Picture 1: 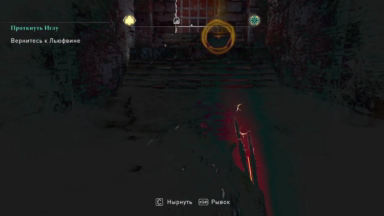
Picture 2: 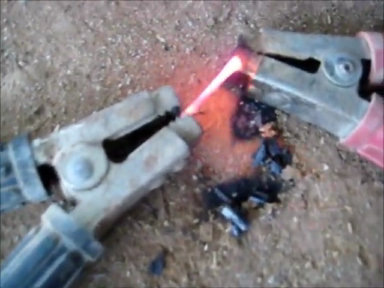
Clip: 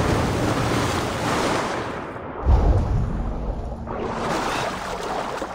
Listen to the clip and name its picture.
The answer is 1